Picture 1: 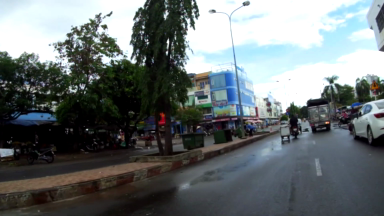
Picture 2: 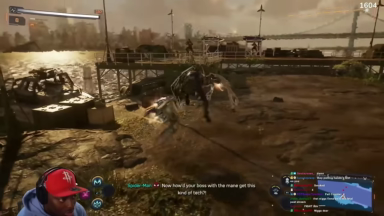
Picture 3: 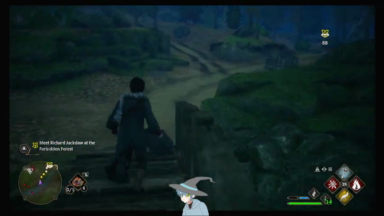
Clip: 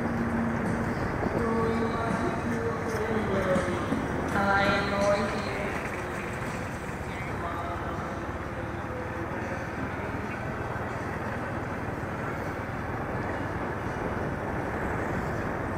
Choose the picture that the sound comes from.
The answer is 1